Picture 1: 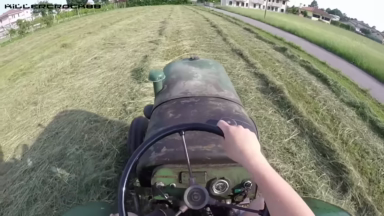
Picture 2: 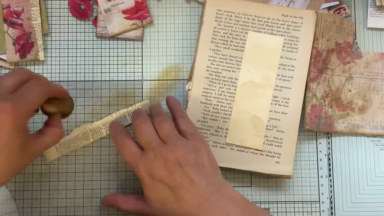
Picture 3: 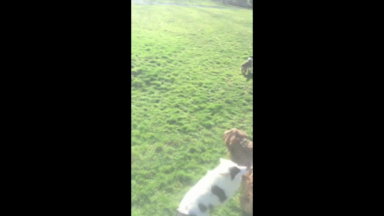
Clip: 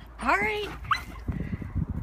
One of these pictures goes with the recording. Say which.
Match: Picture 3